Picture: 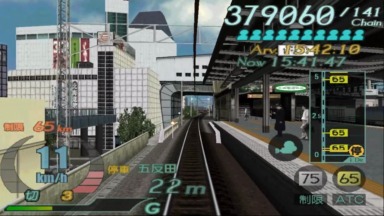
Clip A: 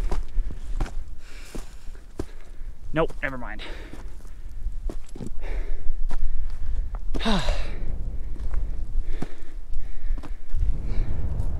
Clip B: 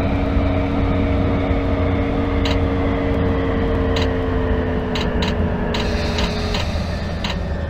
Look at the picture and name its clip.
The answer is B